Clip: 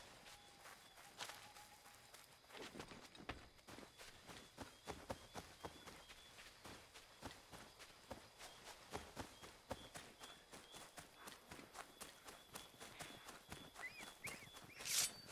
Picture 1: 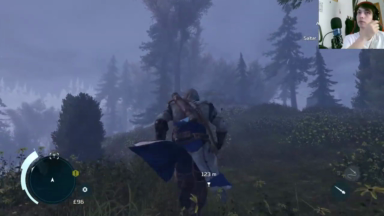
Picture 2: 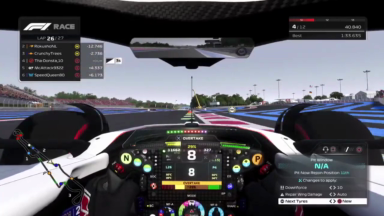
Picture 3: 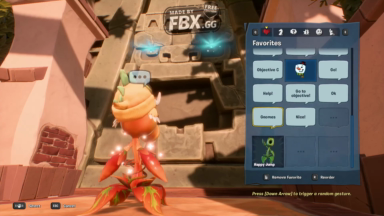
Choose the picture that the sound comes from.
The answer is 1